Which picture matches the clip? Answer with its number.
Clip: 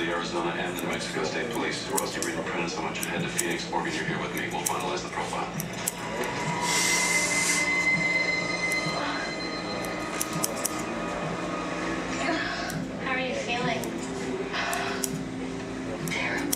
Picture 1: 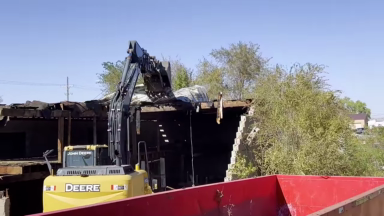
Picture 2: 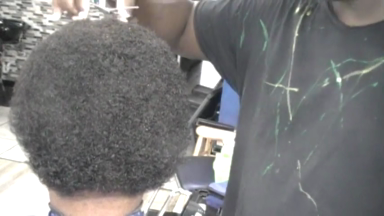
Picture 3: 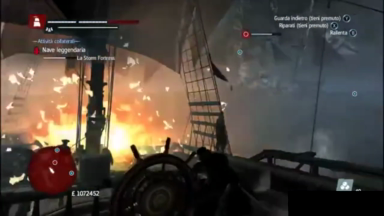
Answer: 2